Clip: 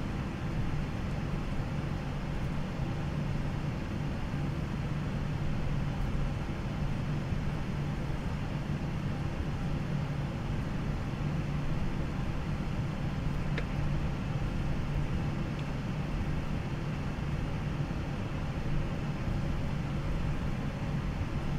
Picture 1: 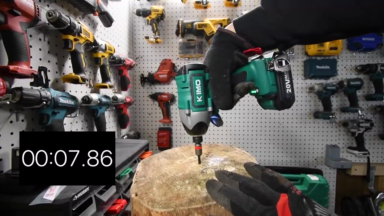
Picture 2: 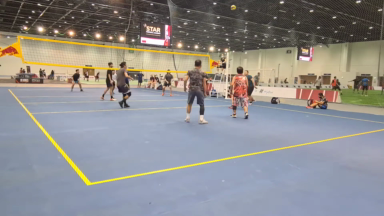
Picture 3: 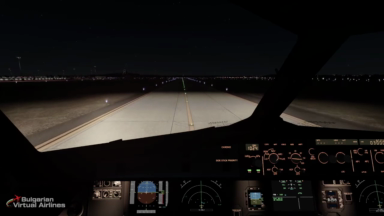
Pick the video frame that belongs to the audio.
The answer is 3